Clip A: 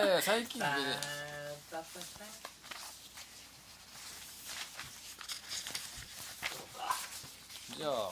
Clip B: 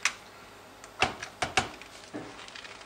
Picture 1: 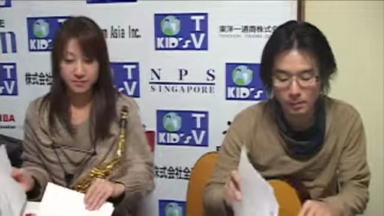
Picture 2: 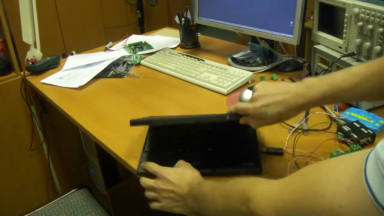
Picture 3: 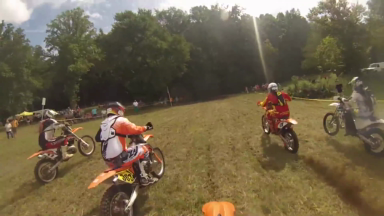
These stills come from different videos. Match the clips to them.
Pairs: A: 1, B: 2